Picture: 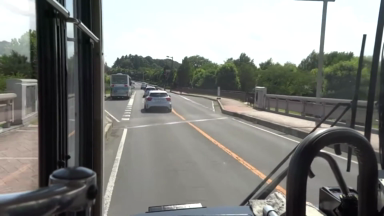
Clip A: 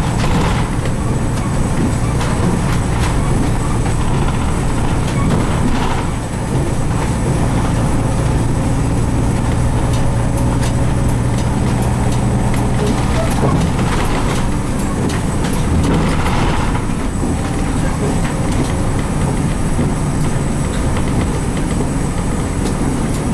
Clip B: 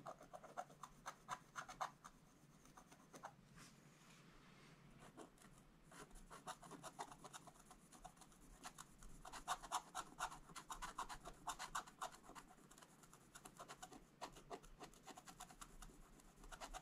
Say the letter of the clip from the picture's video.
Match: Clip A